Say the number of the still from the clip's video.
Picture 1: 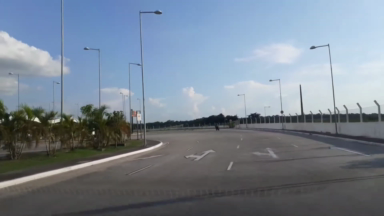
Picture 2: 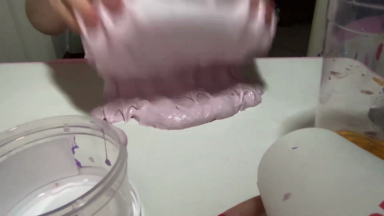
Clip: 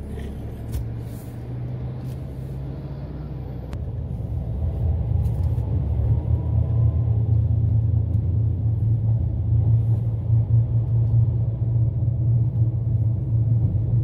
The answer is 1